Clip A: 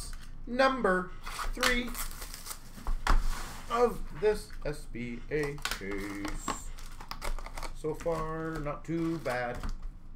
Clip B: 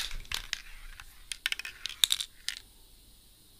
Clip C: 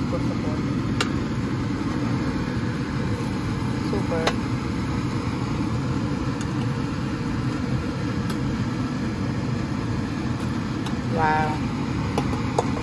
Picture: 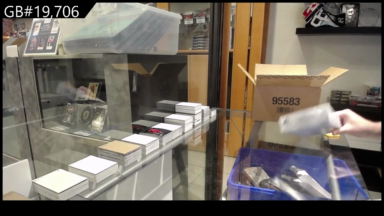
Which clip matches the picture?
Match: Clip A